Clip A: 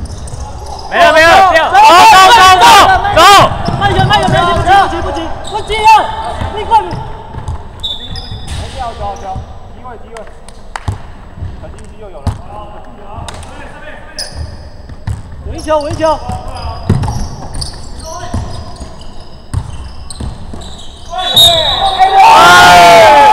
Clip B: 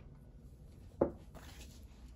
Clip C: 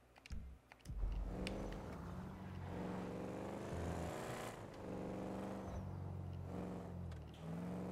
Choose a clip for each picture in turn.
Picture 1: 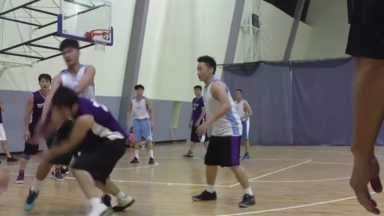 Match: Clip A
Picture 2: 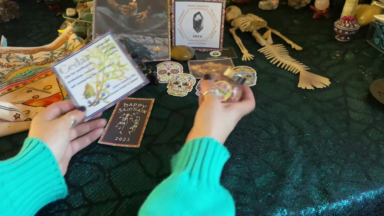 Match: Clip B